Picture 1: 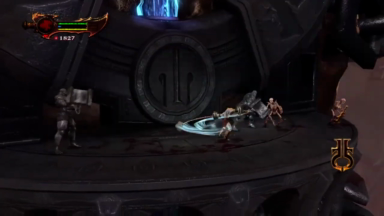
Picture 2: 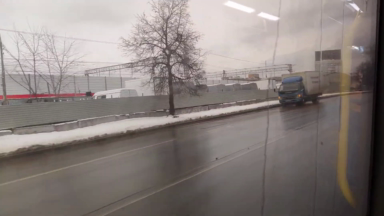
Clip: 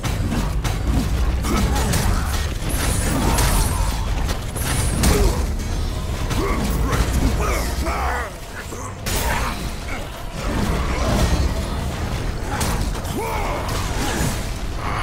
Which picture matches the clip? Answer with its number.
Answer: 1